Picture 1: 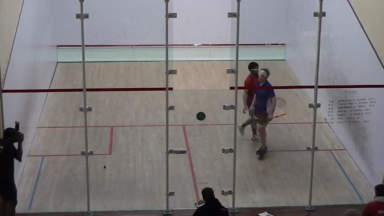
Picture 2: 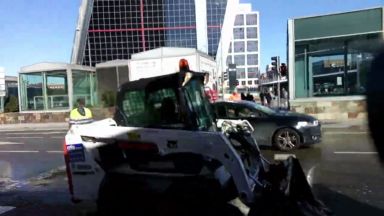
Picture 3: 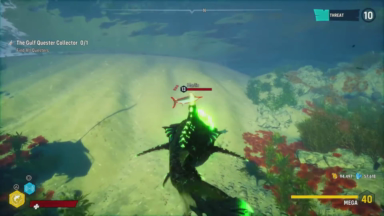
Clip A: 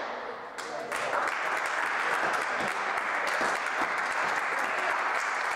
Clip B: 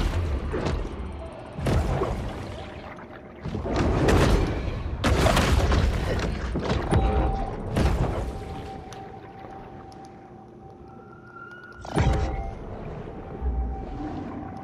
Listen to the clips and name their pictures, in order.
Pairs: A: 1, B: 3